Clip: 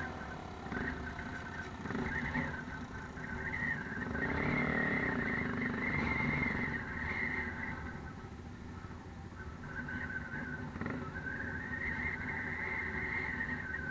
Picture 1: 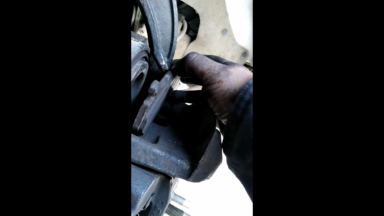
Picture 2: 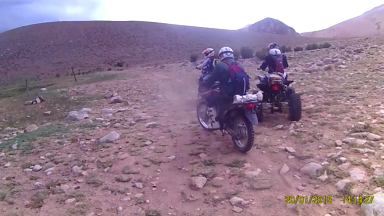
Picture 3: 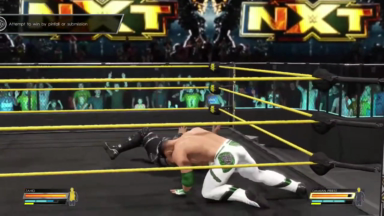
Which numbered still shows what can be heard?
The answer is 2